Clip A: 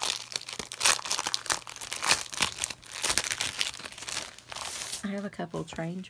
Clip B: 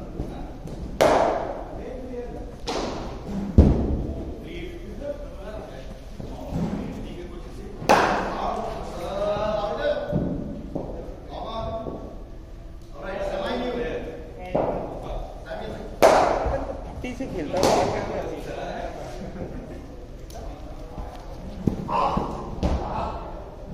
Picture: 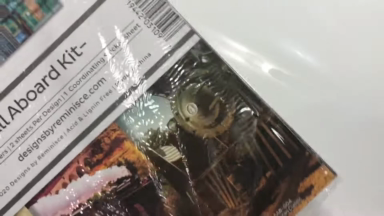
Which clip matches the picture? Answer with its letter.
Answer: A